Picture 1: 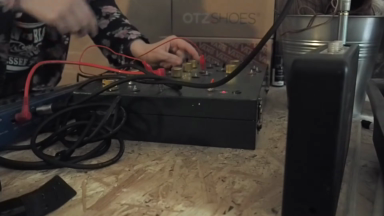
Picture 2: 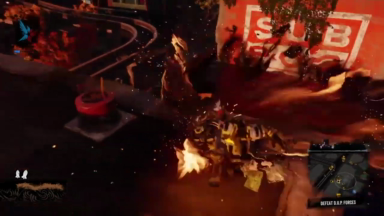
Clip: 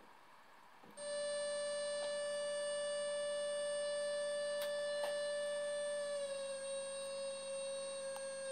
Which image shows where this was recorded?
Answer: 1